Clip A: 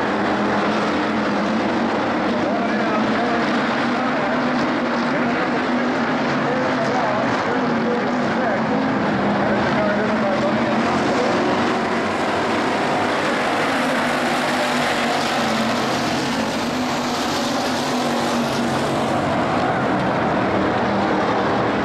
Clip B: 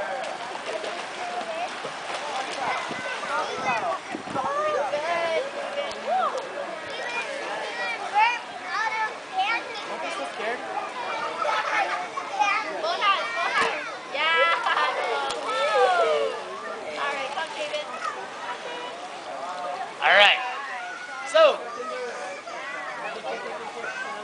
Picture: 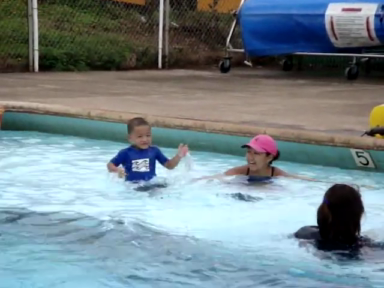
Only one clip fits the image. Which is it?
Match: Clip B